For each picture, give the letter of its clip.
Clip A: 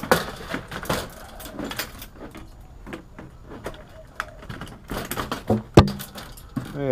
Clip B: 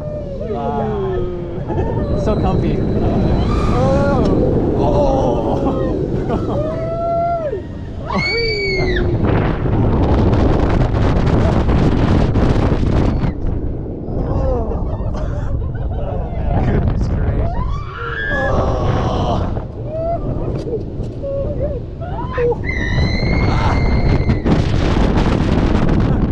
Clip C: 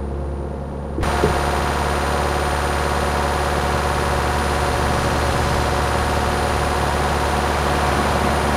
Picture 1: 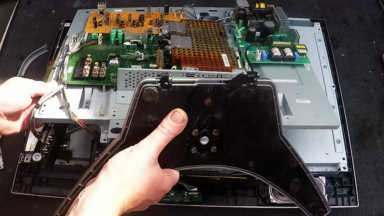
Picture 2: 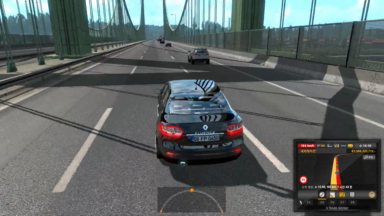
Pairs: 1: A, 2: C